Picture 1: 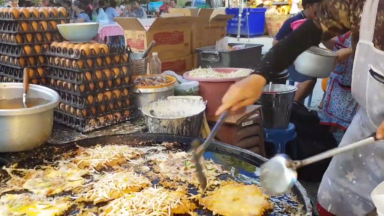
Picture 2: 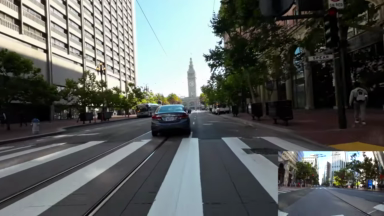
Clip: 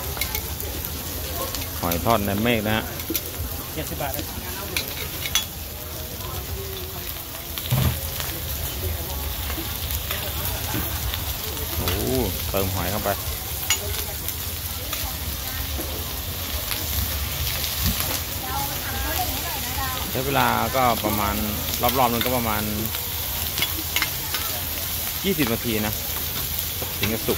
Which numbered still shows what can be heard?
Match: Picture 1